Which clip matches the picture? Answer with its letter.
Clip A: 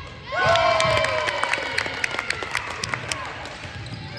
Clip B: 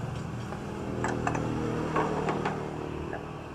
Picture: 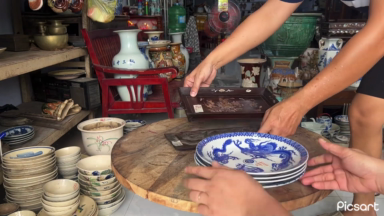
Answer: B